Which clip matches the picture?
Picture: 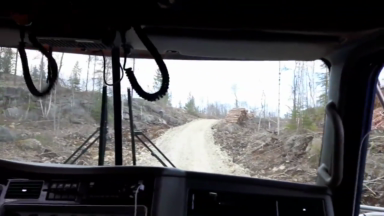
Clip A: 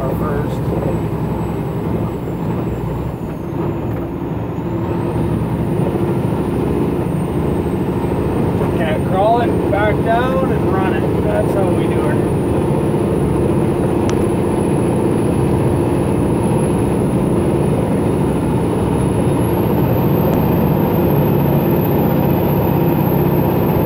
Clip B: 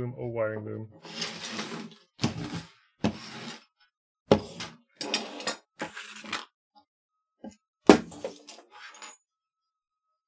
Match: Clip A